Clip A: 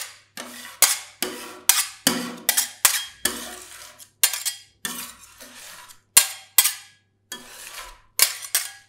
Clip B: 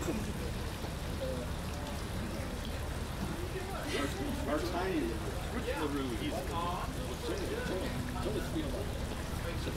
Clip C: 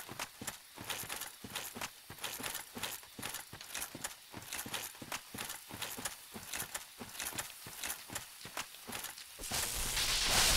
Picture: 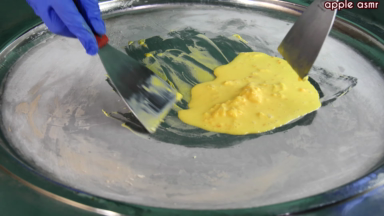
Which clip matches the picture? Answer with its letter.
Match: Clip A